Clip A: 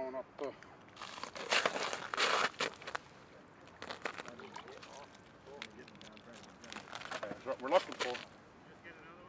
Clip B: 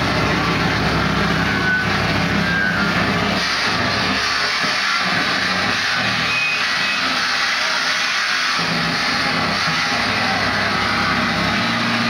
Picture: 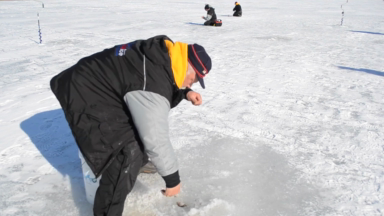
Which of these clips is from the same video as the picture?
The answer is A